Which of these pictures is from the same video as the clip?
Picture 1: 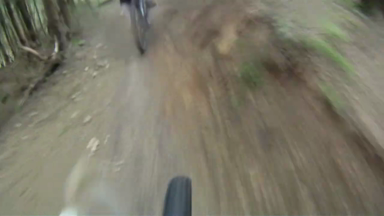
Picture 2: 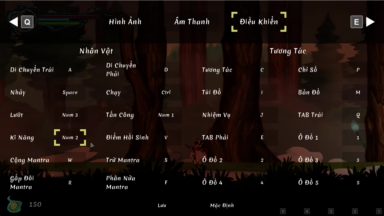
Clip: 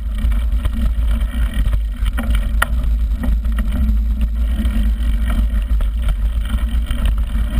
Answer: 1